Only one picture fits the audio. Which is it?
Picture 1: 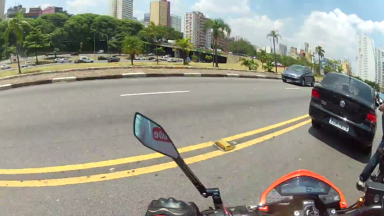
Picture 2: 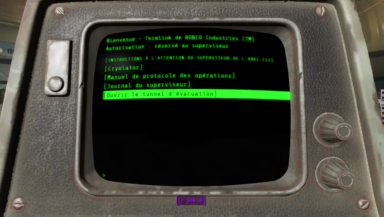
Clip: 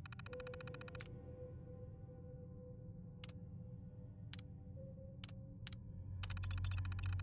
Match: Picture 2